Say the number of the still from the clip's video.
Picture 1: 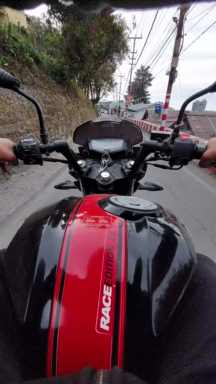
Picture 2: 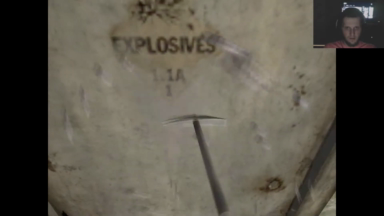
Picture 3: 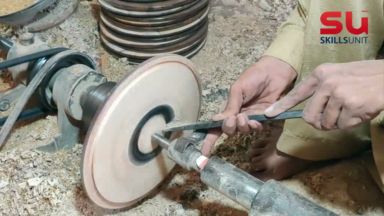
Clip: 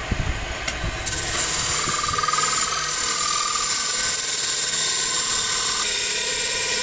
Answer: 3